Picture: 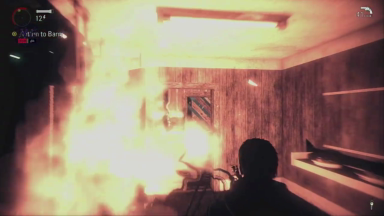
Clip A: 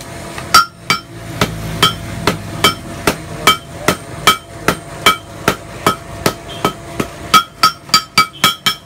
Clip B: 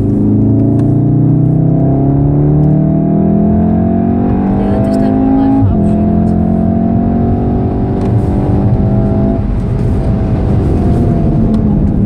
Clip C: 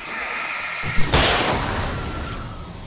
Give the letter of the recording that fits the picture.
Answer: C